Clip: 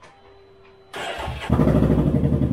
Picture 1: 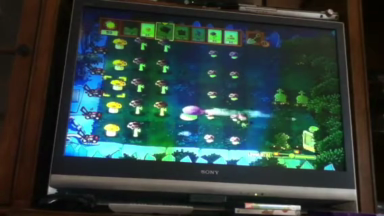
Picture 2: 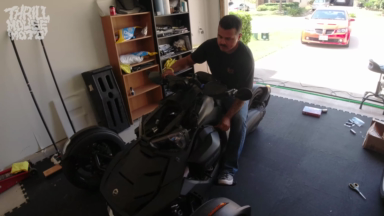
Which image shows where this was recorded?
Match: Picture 2